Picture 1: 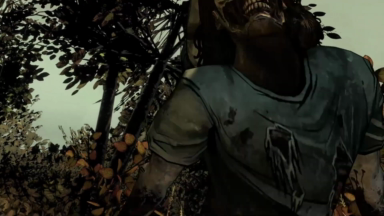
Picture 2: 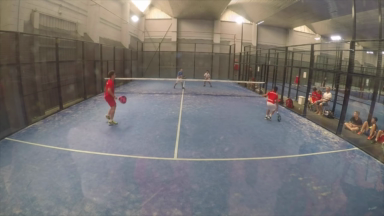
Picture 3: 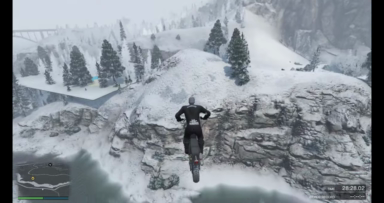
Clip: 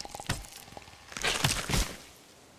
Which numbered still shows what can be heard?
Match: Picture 1